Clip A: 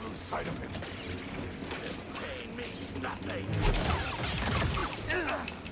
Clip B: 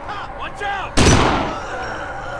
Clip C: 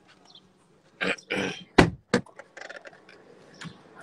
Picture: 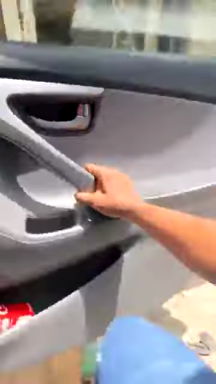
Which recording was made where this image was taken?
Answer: C